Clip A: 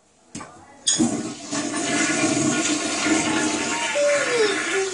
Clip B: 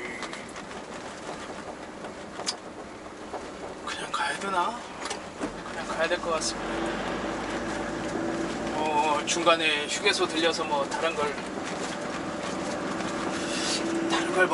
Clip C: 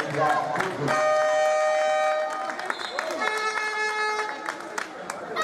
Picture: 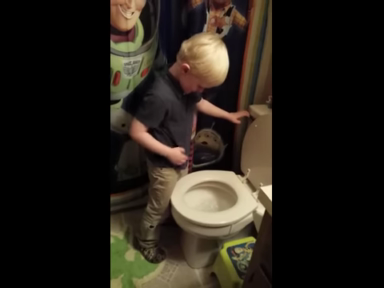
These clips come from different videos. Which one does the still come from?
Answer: A